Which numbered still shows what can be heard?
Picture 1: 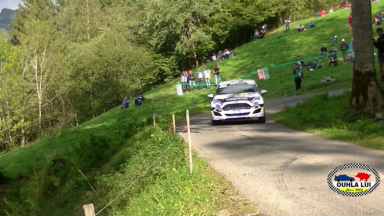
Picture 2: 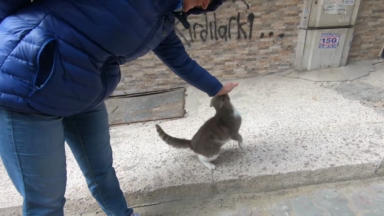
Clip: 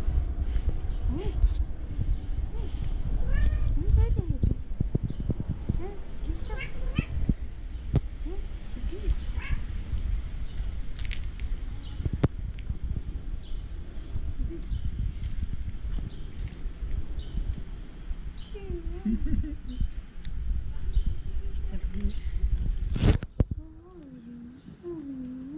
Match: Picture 2